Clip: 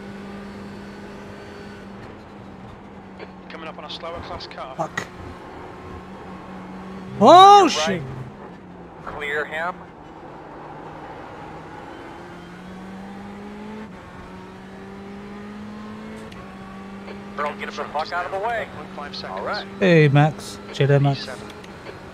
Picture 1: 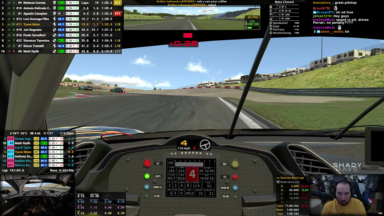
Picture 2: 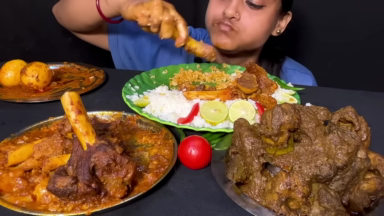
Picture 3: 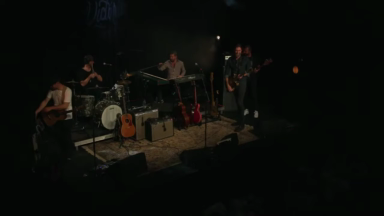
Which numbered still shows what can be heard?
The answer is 1